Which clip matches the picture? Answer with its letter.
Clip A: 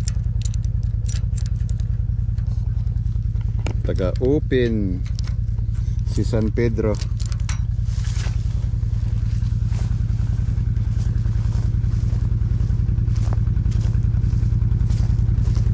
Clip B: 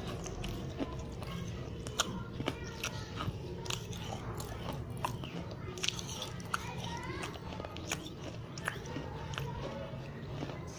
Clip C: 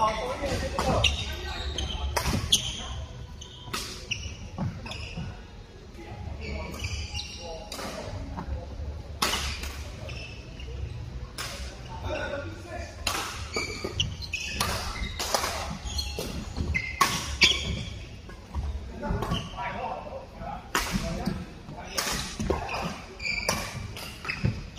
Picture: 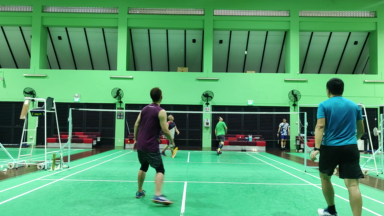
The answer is C